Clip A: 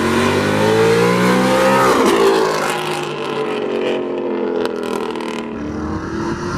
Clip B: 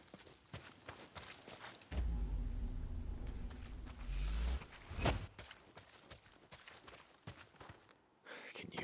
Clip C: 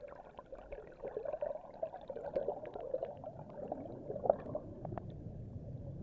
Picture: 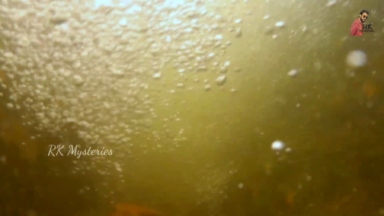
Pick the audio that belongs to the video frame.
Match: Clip C